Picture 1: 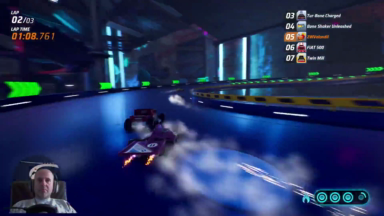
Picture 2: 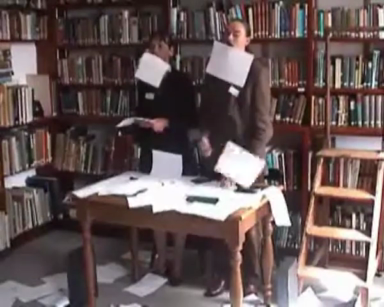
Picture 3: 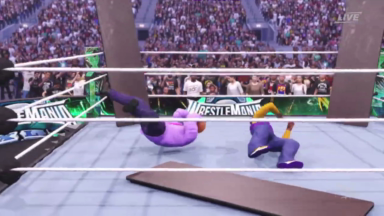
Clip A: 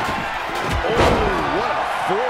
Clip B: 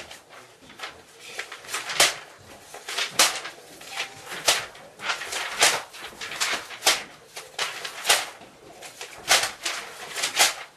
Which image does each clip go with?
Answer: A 3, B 2